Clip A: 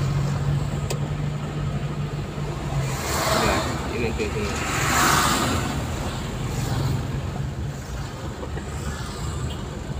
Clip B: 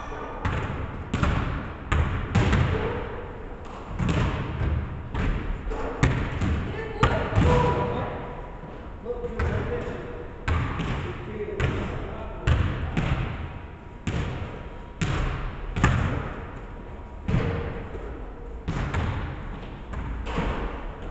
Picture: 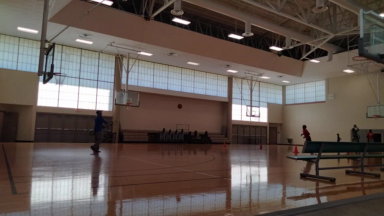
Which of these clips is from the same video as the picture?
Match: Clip B